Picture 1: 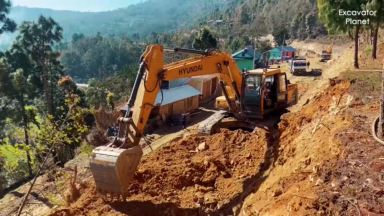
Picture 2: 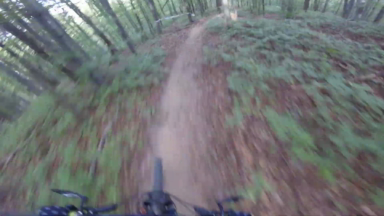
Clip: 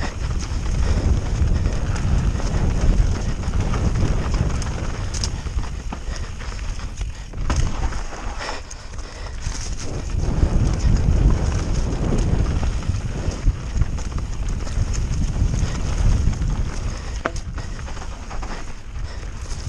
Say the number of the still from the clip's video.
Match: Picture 2